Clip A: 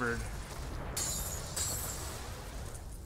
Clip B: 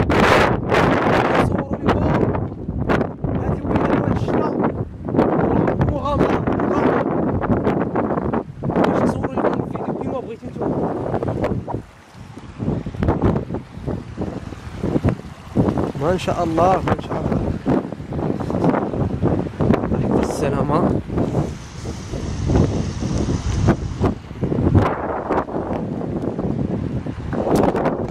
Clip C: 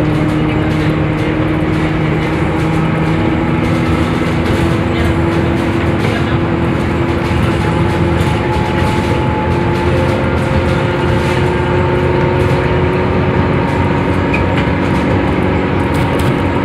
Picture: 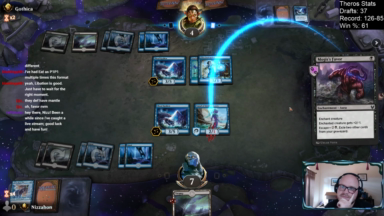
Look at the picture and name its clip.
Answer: A